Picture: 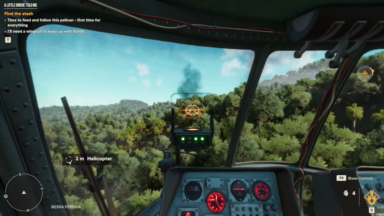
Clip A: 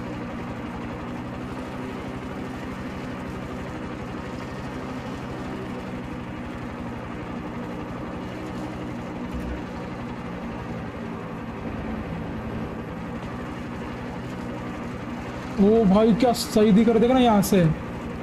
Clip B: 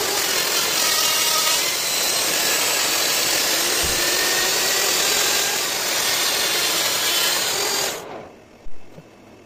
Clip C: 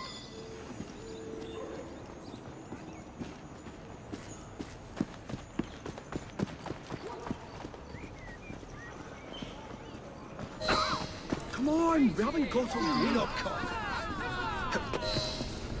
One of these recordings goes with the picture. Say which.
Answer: A